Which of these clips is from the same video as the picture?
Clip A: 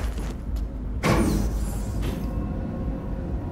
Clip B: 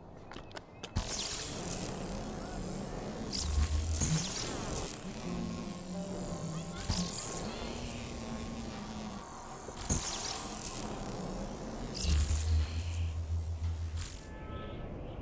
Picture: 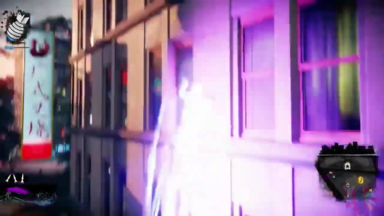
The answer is B